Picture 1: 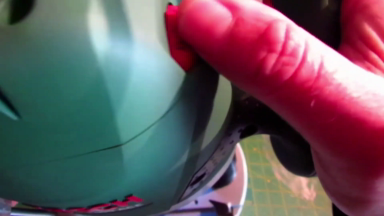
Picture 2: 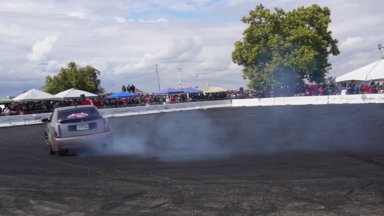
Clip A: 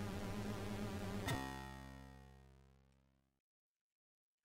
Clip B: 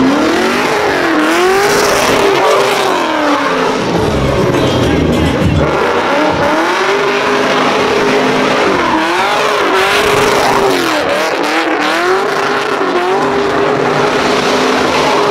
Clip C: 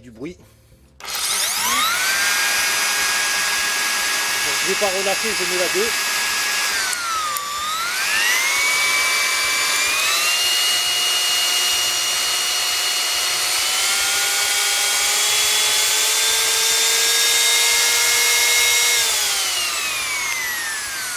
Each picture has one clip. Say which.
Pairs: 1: C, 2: B